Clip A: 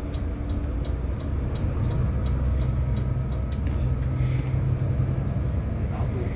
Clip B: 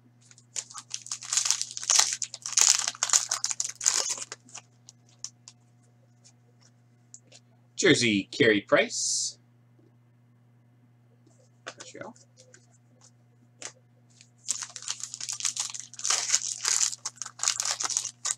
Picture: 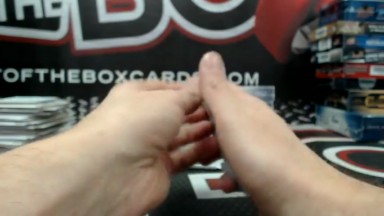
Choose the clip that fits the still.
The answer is B